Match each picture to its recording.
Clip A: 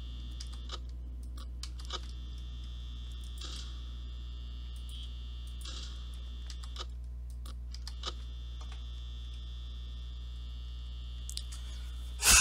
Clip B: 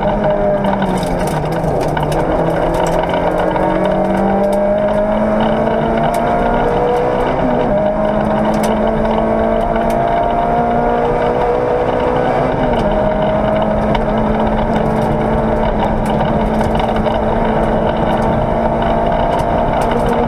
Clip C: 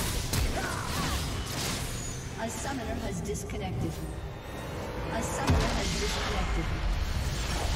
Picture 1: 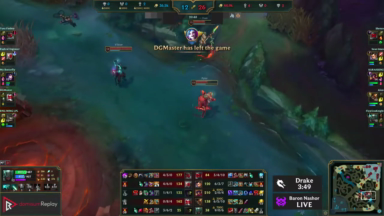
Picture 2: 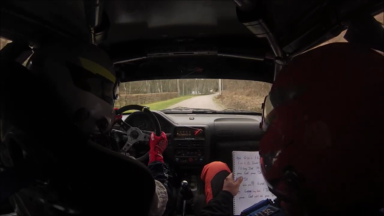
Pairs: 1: C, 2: B